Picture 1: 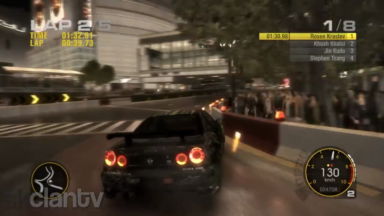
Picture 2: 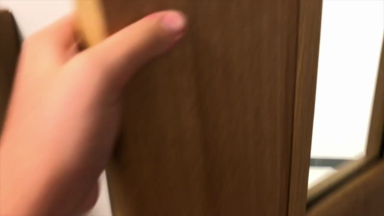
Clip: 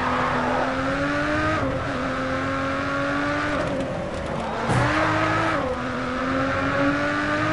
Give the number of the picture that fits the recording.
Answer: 1